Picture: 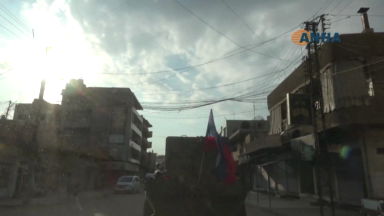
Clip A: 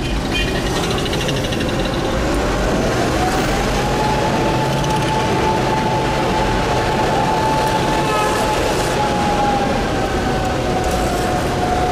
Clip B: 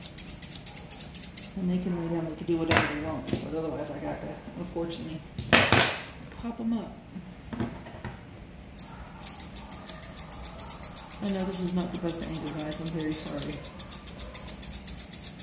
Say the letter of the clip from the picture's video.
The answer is A